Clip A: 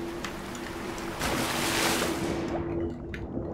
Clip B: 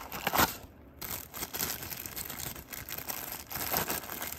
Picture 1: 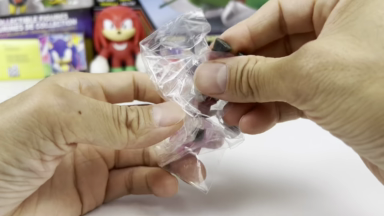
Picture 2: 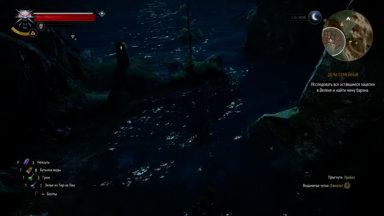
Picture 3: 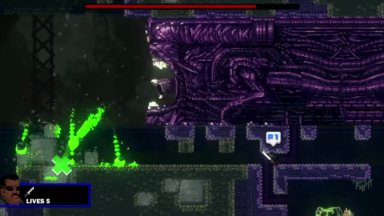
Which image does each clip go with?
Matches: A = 2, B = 1